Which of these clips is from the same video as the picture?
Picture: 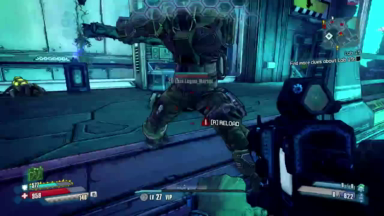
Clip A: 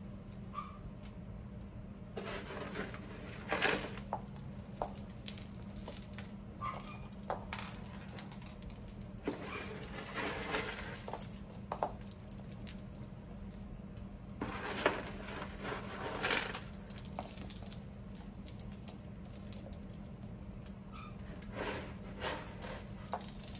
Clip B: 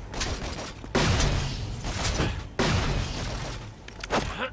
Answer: B